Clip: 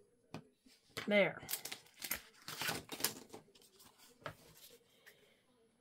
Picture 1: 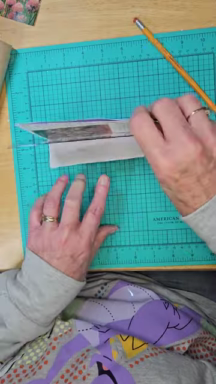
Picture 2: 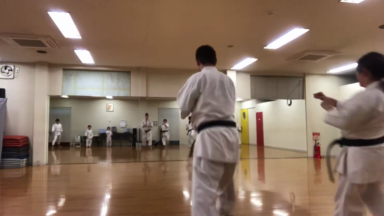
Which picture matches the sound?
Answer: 1